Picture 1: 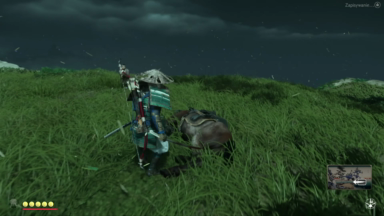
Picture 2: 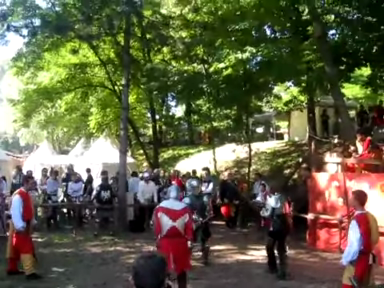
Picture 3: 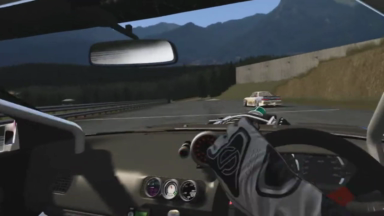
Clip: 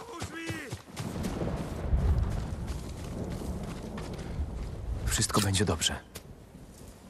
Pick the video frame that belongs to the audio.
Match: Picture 1